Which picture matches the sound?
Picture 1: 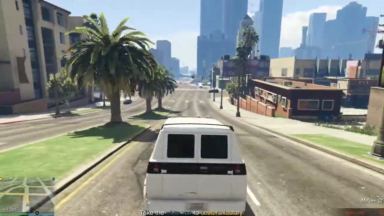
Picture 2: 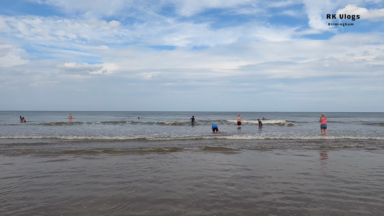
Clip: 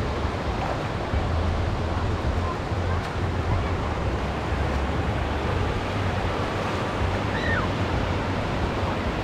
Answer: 2